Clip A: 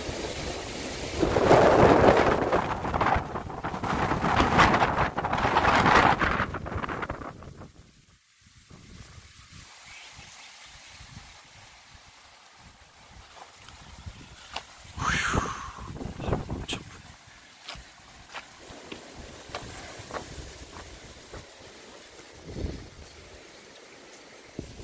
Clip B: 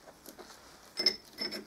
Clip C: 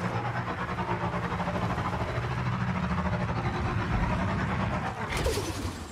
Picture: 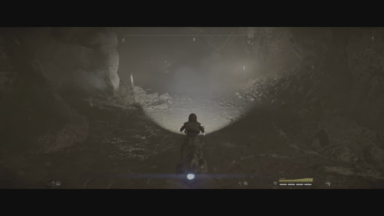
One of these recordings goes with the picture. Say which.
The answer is C